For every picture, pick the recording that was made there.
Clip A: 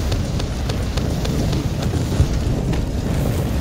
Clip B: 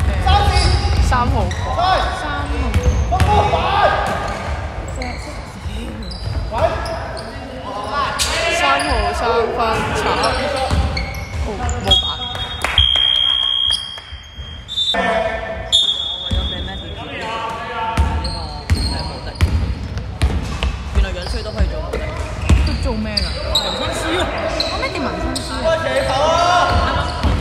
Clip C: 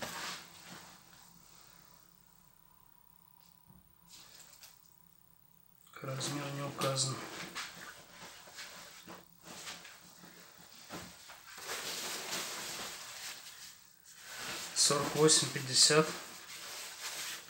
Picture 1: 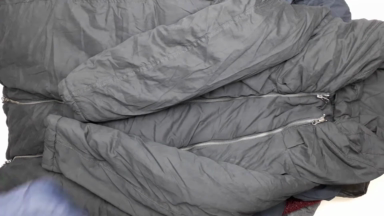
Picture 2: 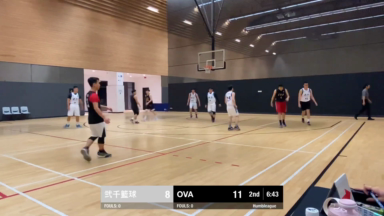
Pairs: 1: C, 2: B